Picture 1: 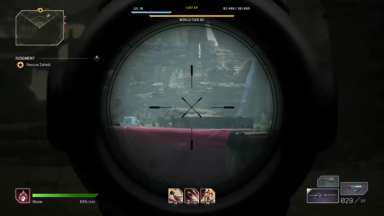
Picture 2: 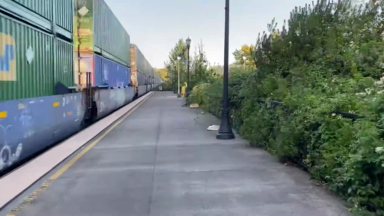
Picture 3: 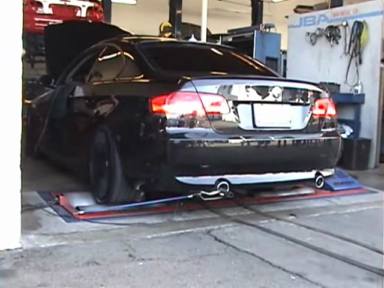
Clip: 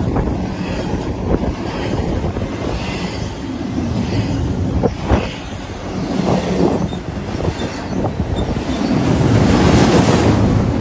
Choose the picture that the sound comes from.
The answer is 2